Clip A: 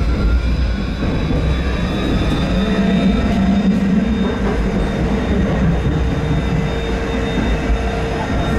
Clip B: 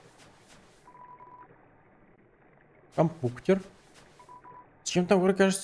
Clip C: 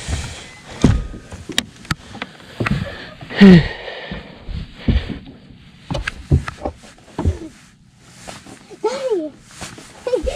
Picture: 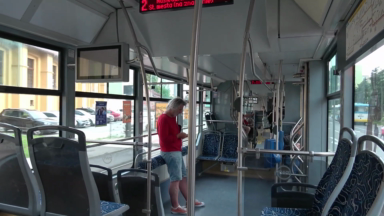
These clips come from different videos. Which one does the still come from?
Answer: A